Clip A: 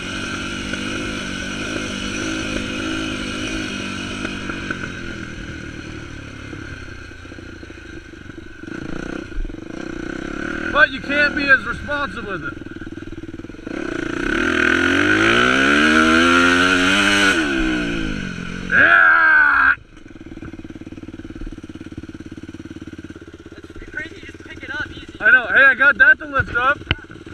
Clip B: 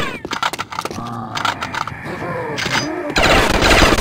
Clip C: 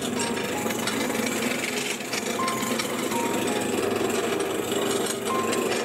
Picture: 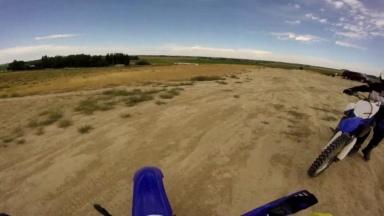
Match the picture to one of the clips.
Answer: A